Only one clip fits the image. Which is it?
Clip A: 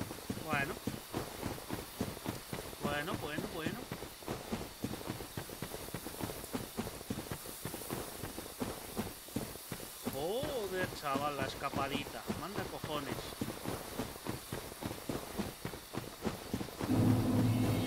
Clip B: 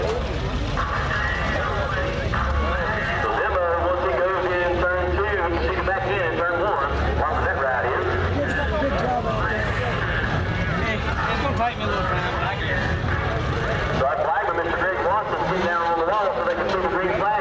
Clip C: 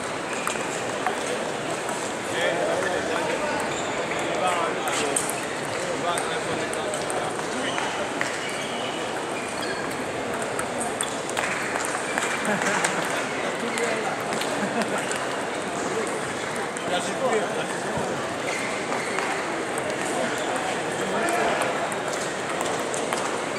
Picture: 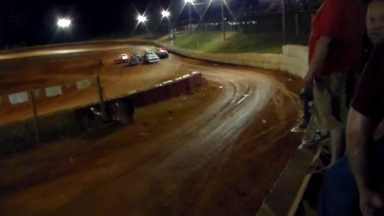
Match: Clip B